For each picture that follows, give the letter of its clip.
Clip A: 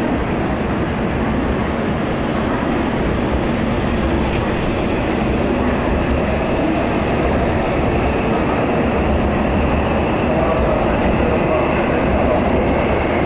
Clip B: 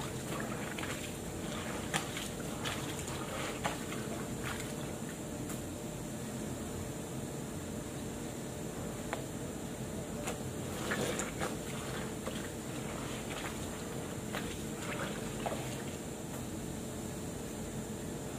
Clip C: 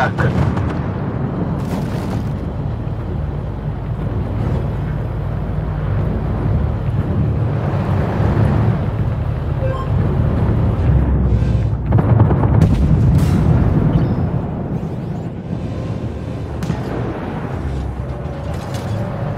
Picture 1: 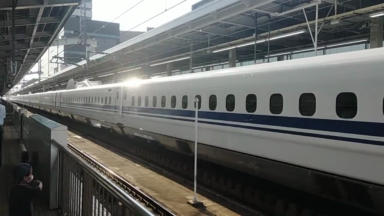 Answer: A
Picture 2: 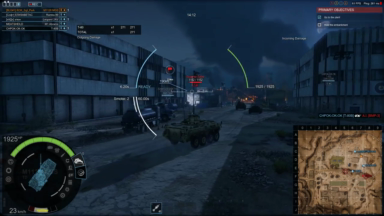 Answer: C